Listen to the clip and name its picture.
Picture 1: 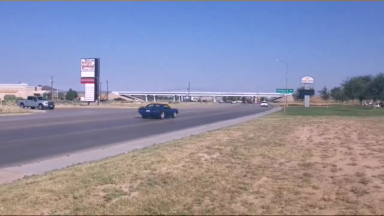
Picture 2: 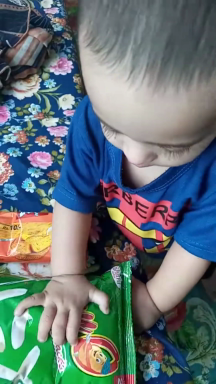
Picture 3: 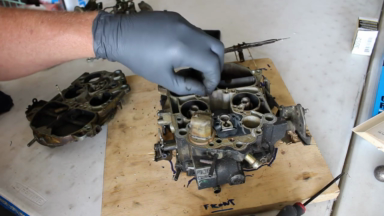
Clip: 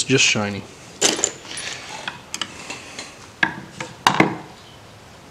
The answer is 3